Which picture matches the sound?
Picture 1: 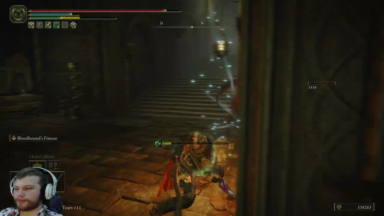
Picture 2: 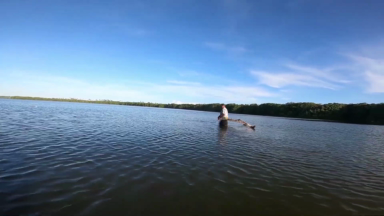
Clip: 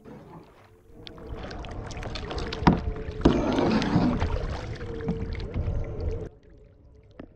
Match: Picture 2